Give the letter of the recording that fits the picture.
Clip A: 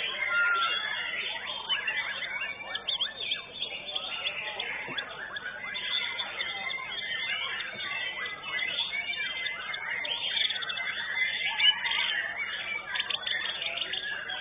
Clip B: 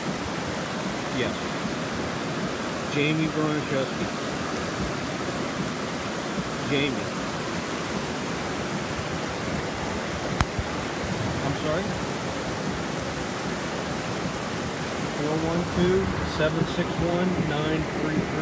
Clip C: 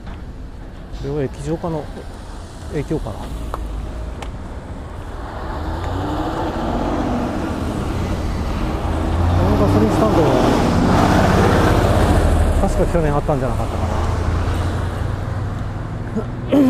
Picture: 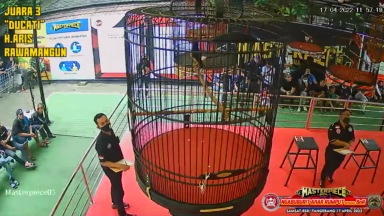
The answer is A